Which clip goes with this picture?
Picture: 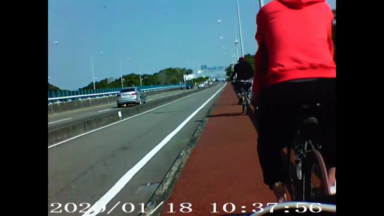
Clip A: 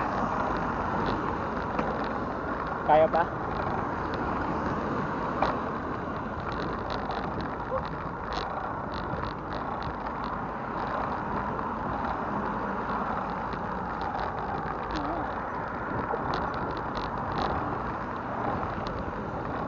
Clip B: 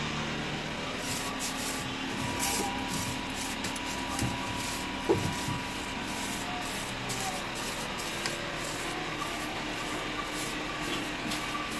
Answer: A